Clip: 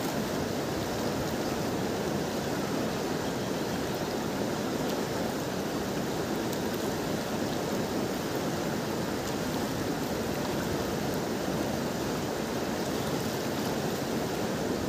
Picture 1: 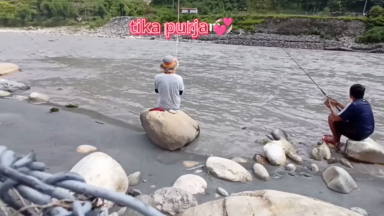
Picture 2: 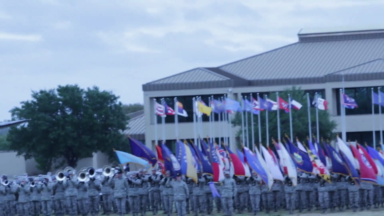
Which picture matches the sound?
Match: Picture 1